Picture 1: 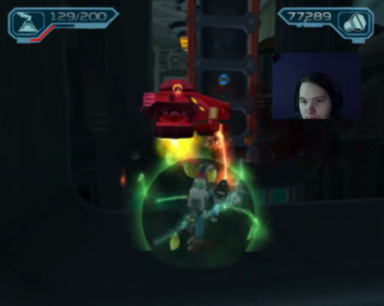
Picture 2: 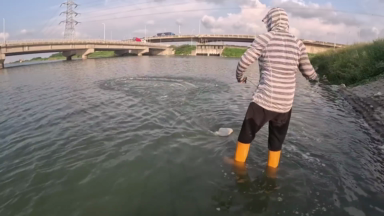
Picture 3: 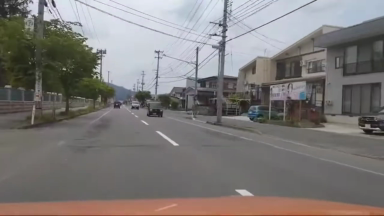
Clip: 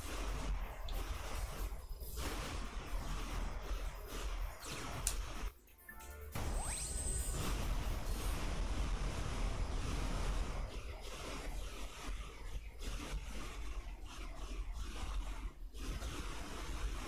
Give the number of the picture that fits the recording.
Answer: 1